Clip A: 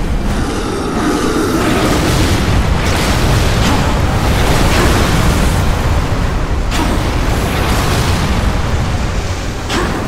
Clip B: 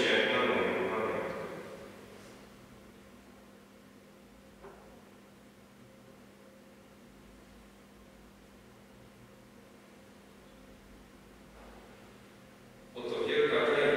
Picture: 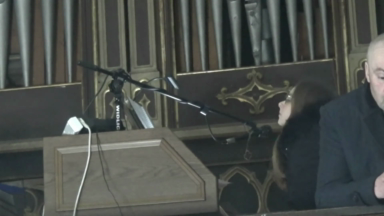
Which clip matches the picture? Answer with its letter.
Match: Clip B